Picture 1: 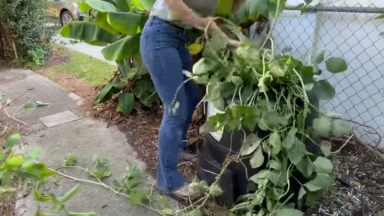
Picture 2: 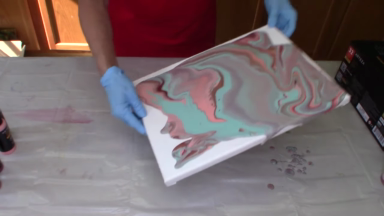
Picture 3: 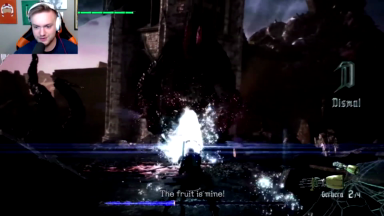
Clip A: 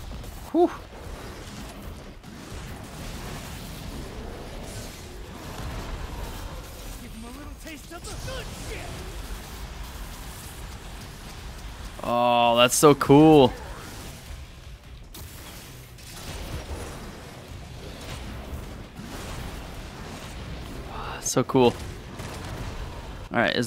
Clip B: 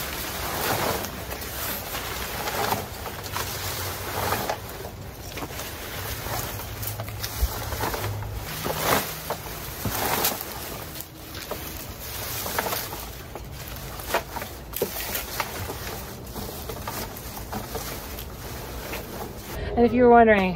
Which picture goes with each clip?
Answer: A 3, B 1